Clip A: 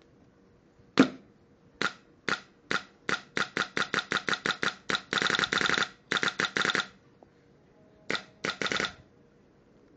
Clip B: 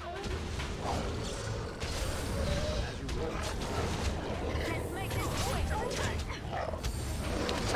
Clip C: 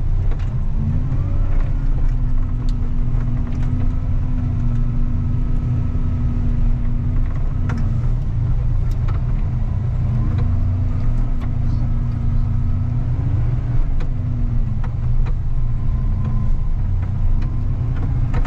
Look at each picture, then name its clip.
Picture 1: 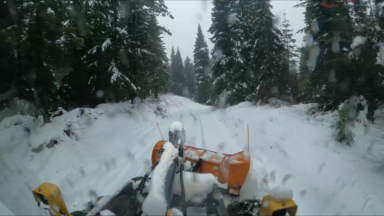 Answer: C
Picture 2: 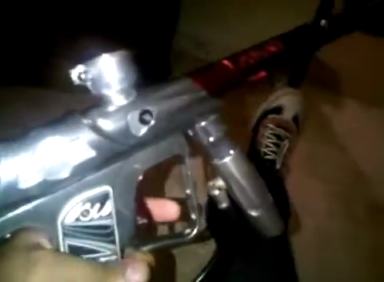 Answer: A